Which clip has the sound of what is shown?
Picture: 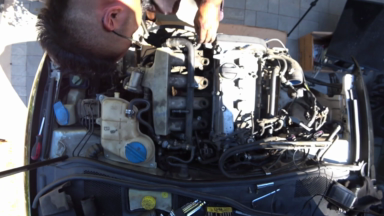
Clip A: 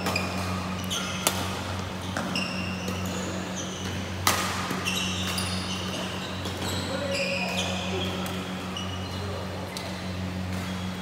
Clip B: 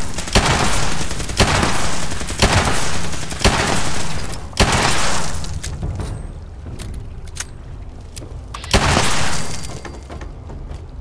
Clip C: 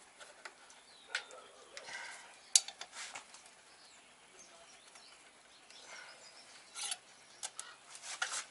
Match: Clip C